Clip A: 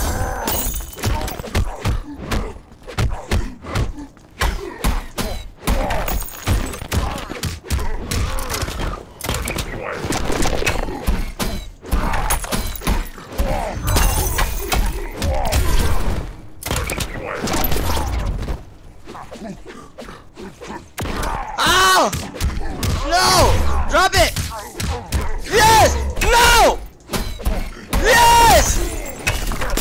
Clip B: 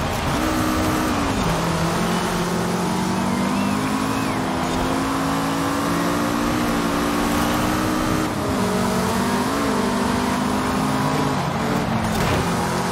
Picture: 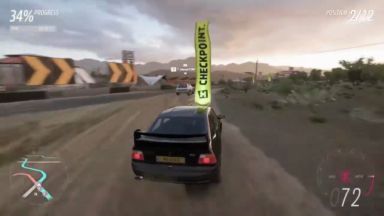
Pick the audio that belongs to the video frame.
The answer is B